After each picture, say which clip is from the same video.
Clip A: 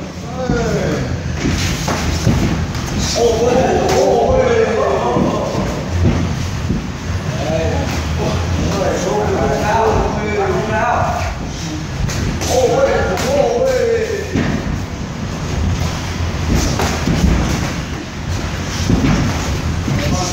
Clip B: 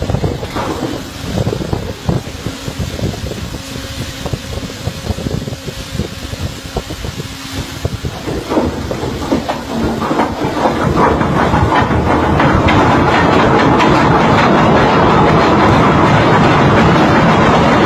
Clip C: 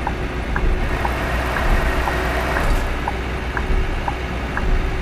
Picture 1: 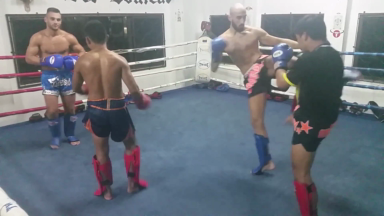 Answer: A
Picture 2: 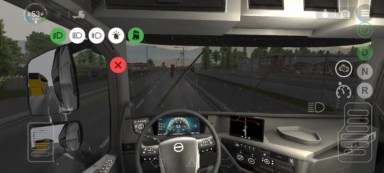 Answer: C